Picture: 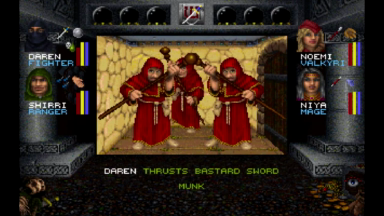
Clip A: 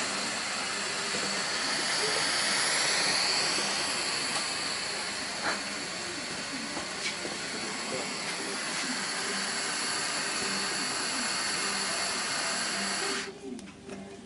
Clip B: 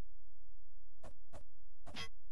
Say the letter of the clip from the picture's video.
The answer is B